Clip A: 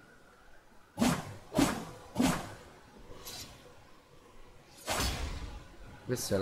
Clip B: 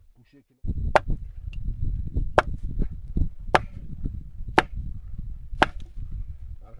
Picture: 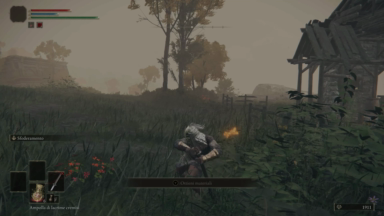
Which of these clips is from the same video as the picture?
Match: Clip A